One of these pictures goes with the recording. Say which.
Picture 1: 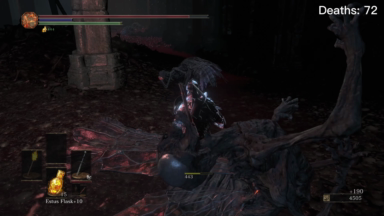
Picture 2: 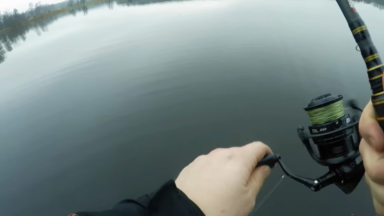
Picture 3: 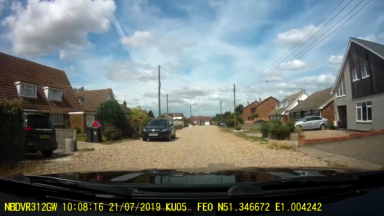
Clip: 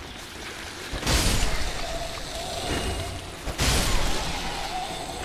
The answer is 1